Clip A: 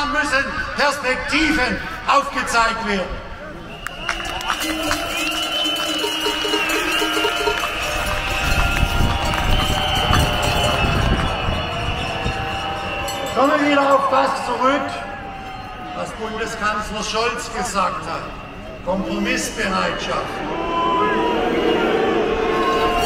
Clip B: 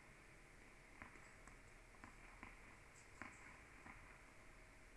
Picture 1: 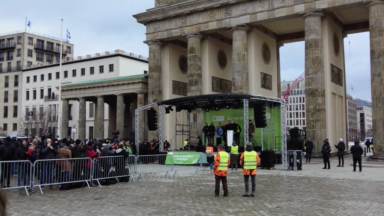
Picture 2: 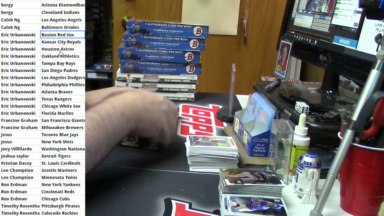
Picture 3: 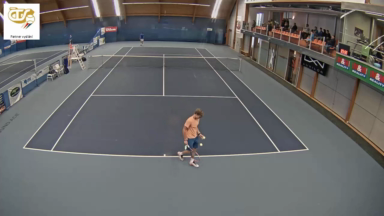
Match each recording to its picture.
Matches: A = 1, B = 3